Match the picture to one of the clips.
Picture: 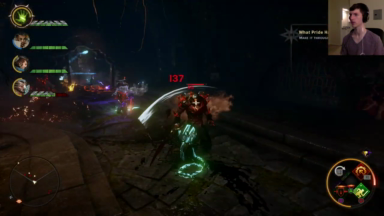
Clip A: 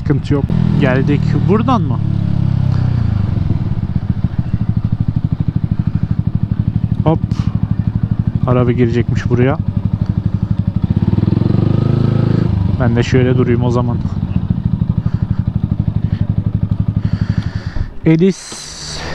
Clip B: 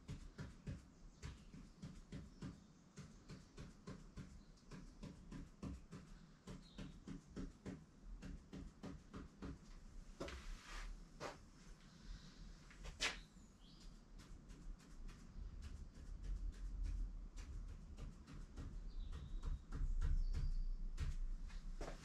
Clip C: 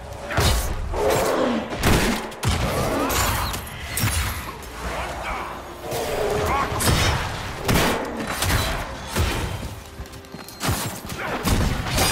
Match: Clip C